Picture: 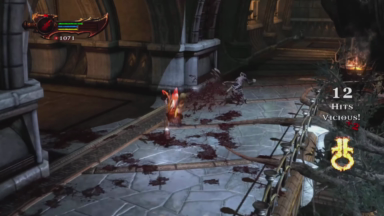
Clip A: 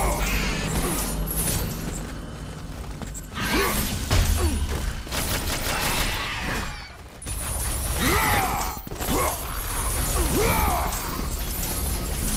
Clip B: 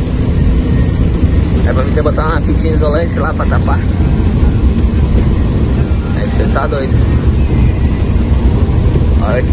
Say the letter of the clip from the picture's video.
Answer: A